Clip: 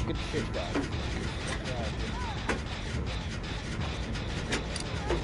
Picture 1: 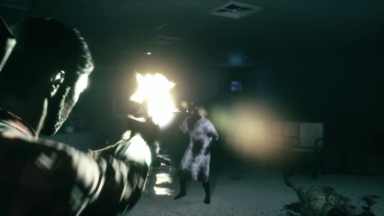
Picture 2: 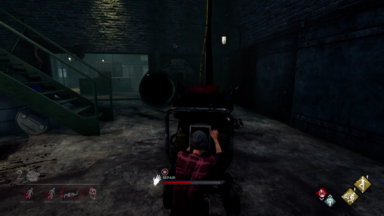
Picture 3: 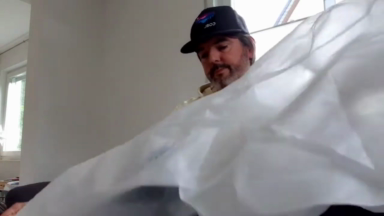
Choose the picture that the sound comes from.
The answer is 2